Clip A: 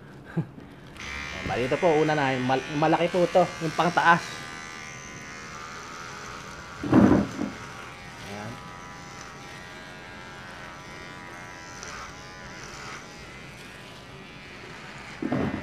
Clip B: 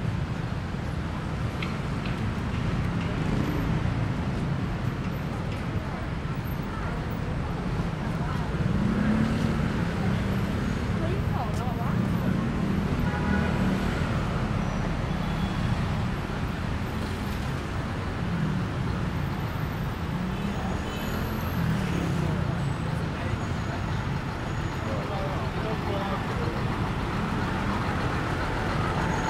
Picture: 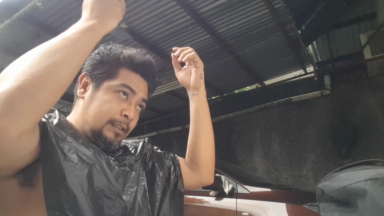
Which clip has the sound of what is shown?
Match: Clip A